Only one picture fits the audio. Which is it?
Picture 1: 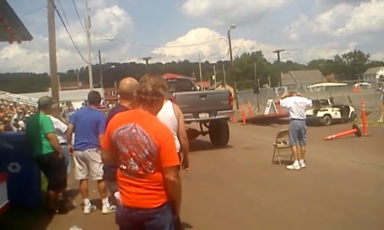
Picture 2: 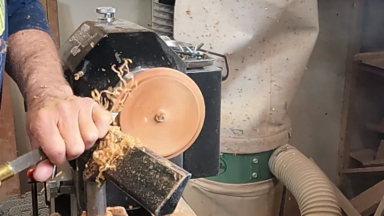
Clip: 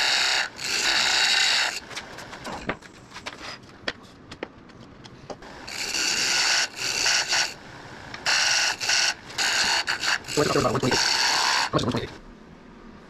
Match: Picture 2